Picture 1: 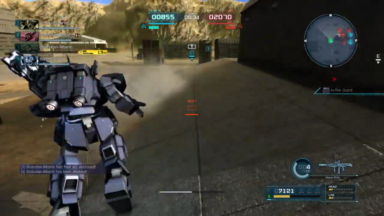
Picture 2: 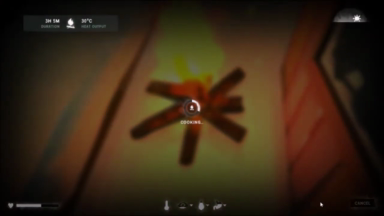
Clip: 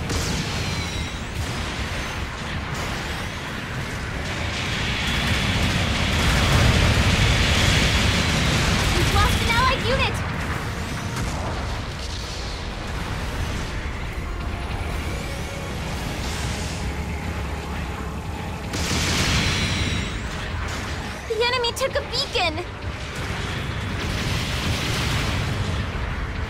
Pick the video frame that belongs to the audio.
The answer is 1